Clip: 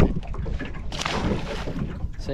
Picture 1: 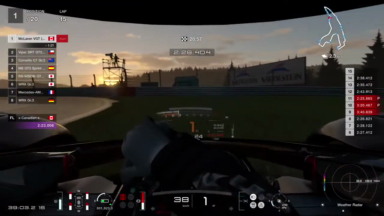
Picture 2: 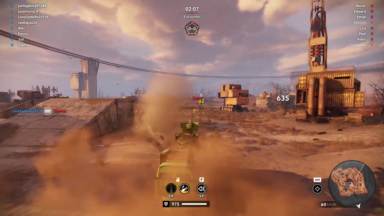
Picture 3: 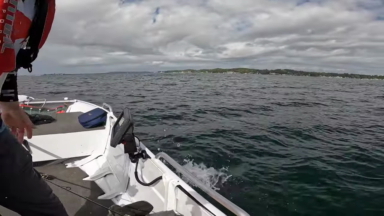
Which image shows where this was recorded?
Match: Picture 3